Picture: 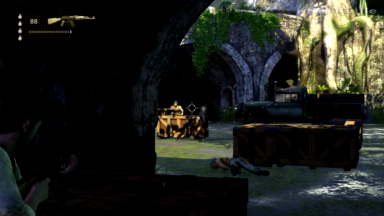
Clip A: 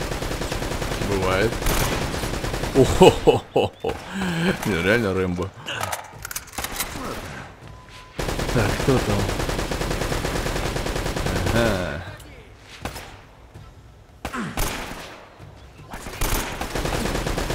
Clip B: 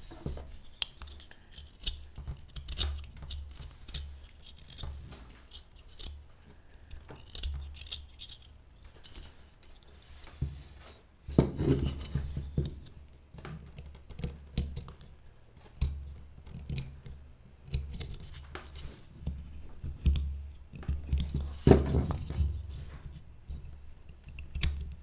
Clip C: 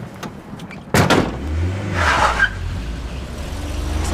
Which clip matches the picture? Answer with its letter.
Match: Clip A